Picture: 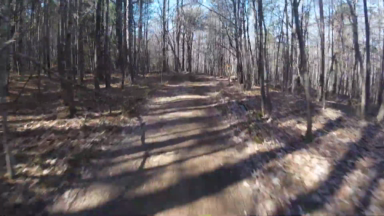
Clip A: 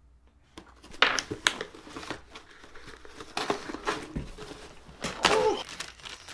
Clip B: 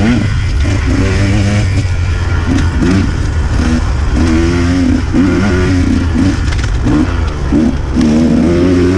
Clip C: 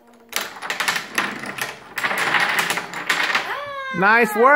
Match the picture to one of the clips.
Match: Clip B